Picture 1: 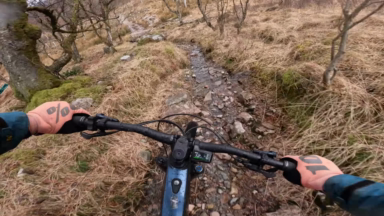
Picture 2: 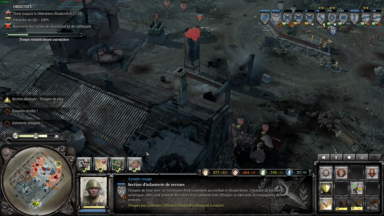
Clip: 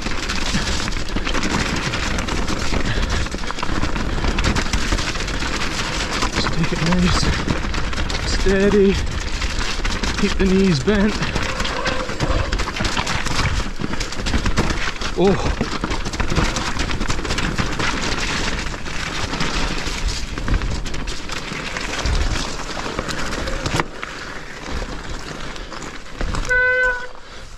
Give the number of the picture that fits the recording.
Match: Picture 1